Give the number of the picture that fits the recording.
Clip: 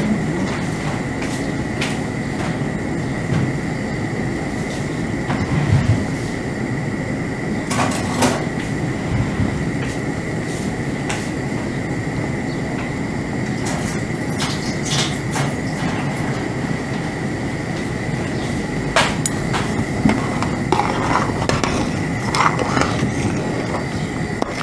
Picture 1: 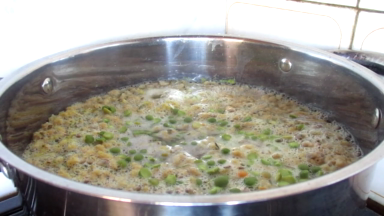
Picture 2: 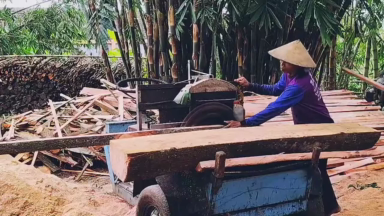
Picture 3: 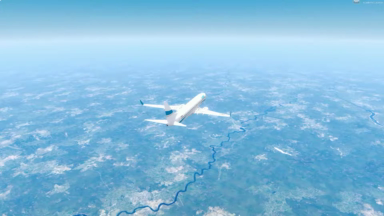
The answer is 1